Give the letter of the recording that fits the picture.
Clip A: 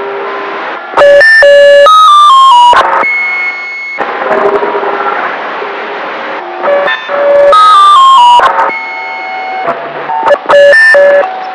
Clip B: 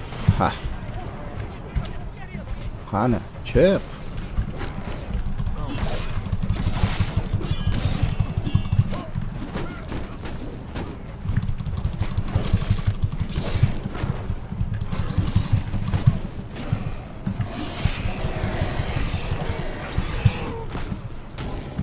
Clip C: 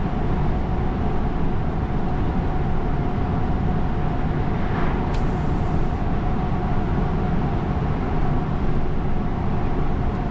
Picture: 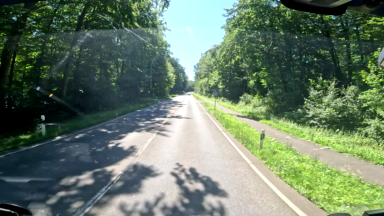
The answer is C